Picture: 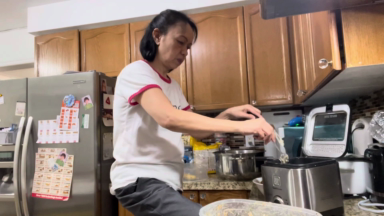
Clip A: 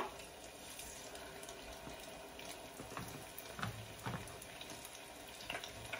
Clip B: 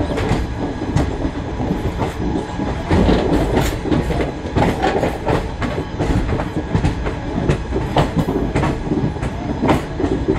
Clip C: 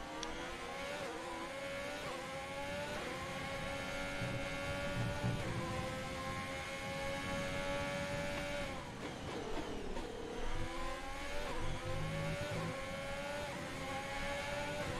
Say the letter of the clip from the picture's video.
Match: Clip A